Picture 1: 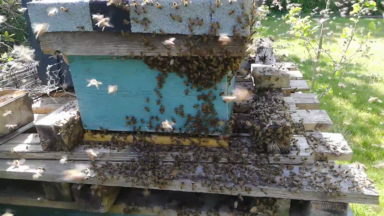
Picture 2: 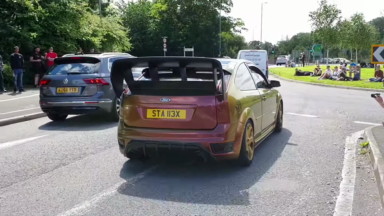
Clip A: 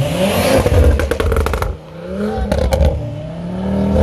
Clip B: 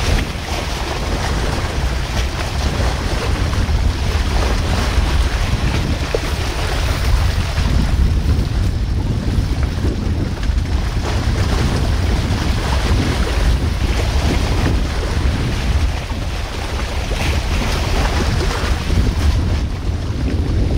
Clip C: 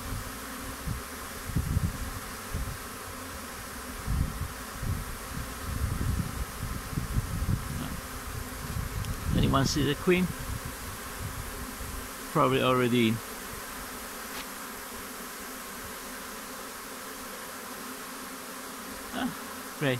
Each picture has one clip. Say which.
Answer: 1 C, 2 A